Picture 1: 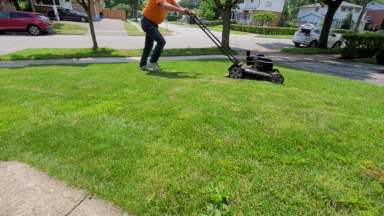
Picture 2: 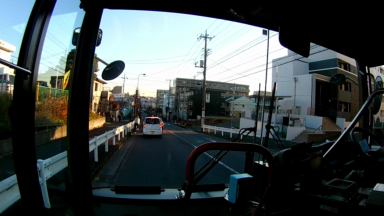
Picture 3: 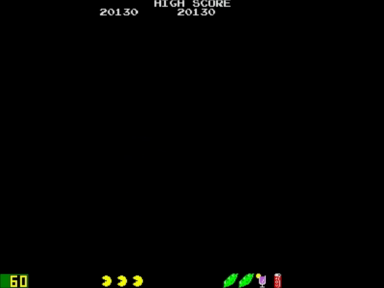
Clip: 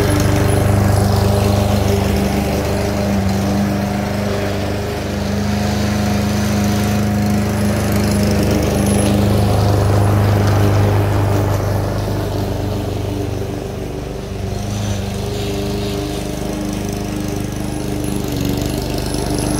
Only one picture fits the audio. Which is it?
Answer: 1